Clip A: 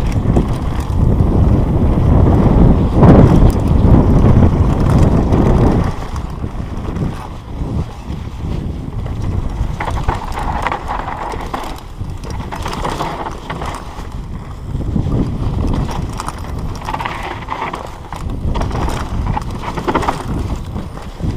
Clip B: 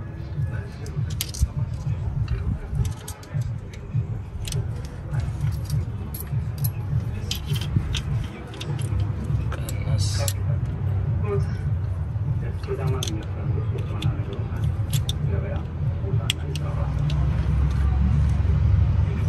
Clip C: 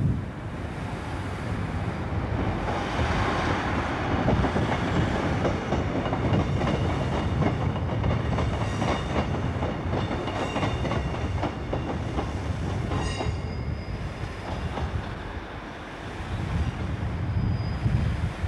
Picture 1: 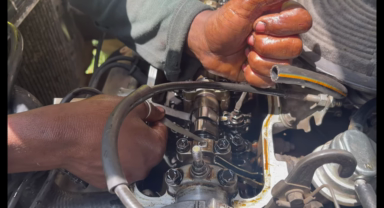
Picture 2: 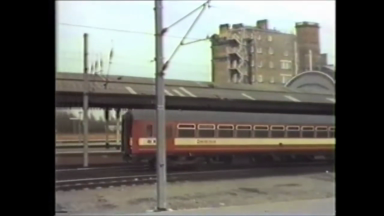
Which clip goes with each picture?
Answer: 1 B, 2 C